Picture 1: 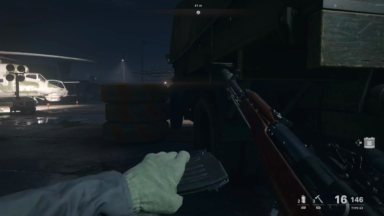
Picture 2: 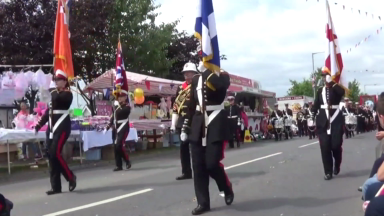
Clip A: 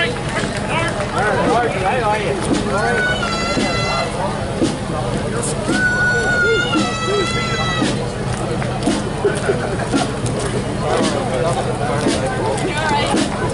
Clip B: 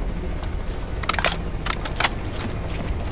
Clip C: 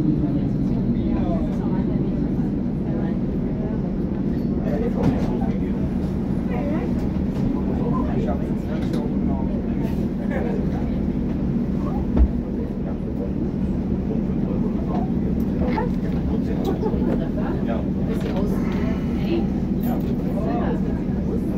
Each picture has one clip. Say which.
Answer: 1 B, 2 A